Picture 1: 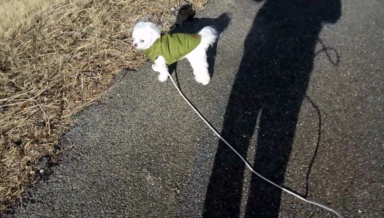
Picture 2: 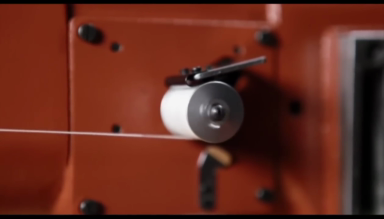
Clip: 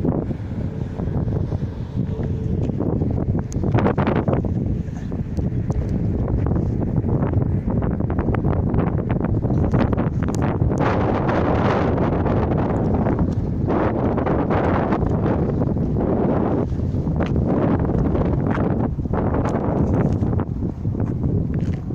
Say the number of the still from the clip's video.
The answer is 1